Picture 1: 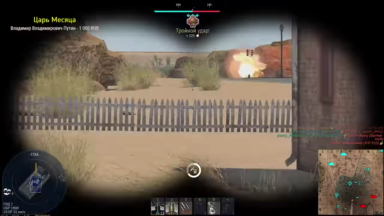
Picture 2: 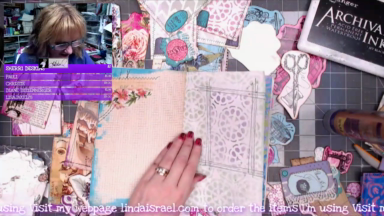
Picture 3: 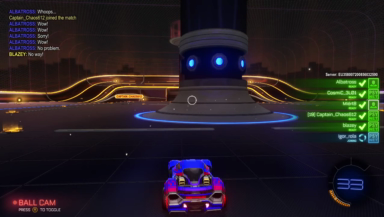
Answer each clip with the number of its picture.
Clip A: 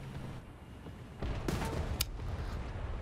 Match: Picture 1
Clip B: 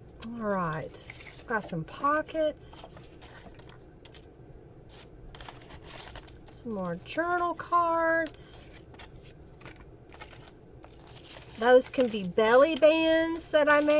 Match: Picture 2